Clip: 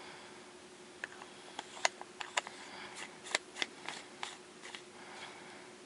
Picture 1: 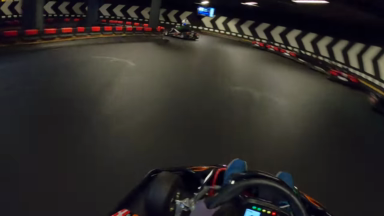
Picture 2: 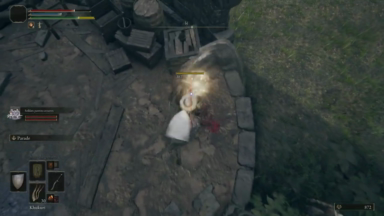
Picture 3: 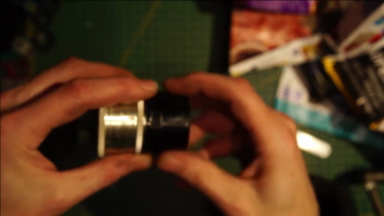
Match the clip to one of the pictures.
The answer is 3